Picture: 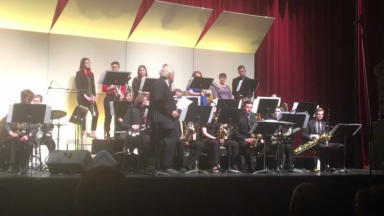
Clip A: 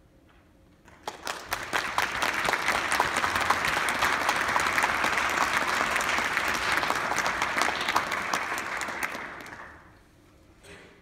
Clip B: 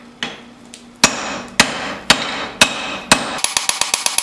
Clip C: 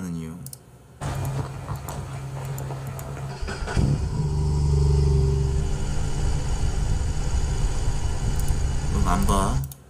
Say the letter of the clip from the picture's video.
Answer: A